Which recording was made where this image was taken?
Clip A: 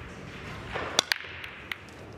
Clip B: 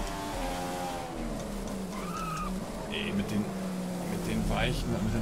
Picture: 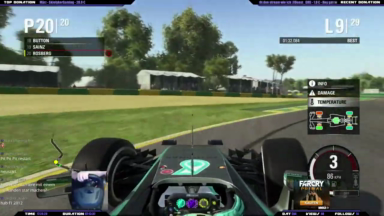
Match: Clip B